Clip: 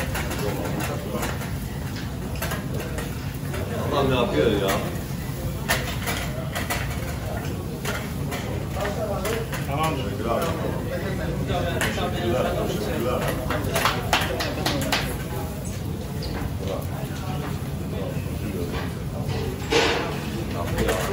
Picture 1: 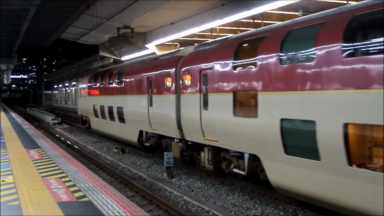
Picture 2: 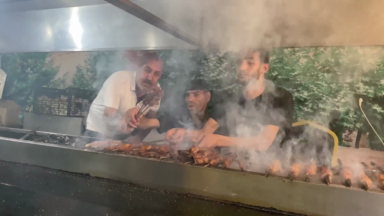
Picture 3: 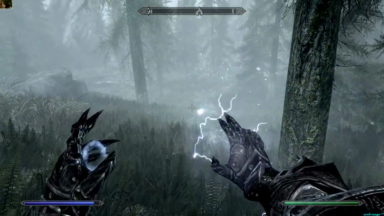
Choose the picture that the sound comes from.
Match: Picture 2